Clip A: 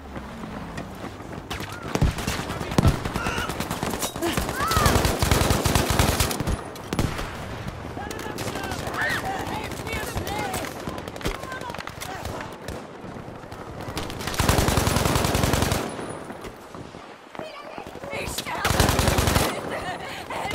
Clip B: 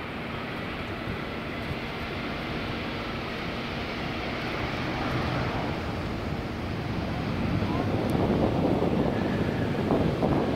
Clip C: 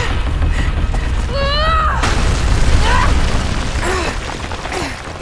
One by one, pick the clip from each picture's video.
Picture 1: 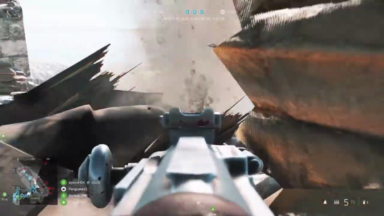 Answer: A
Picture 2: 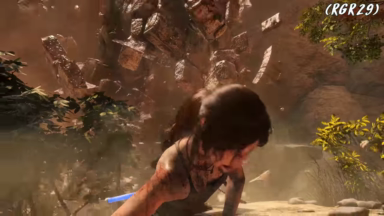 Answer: C